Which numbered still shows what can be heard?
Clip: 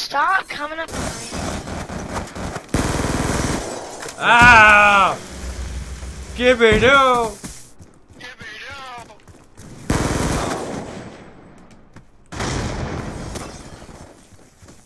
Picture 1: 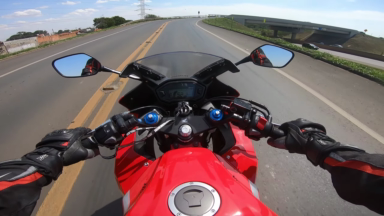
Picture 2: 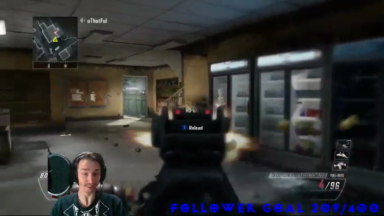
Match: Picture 2